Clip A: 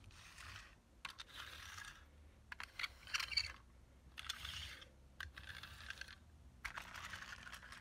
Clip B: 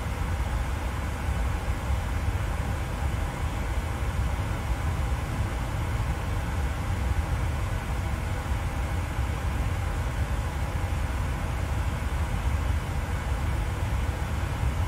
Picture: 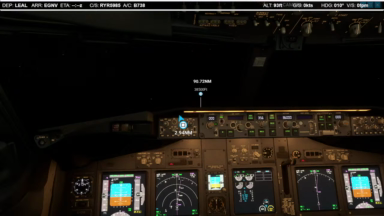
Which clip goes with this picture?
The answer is B